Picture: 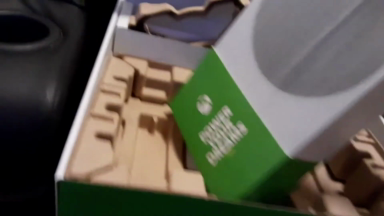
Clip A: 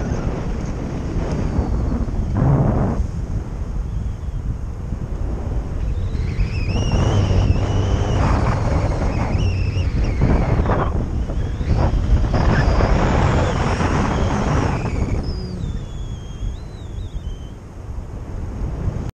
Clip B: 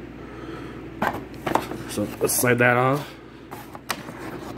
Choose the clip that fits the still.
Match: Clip B